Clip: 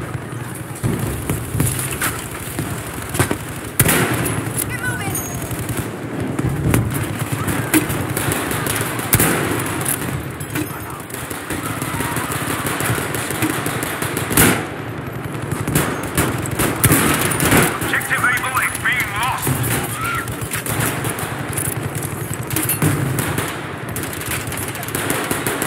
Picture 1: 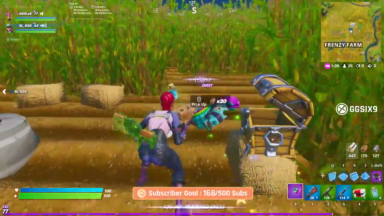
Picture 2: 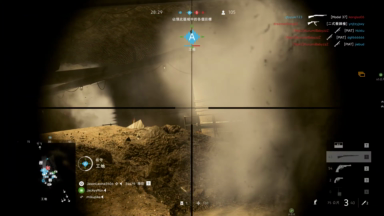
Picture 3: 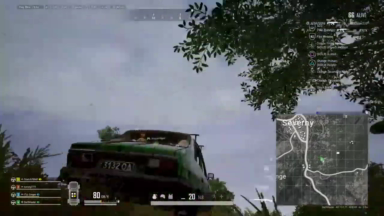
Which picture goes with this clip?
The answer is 2